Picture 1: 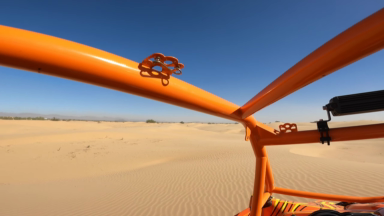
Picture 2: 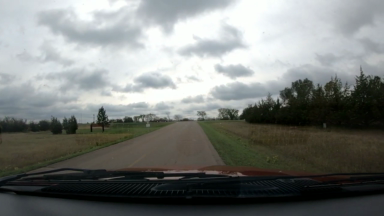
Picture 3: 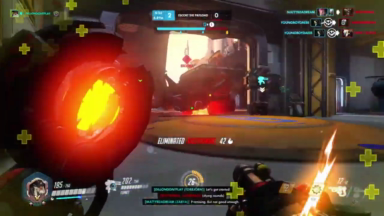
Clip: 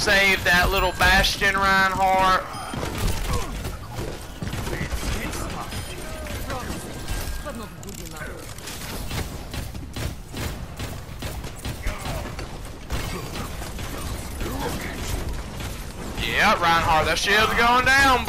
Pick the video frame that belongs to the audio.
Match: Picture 3